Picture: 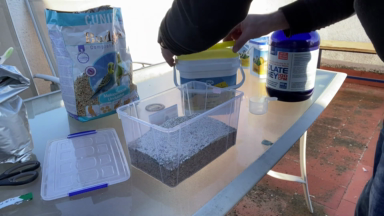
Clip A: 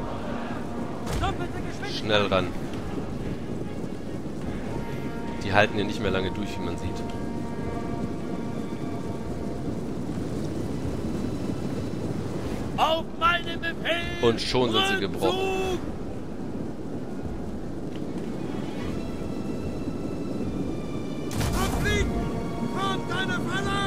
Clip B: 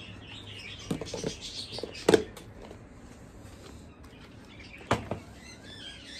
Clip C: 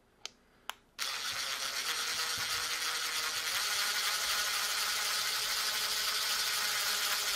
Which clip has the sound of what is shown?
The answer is B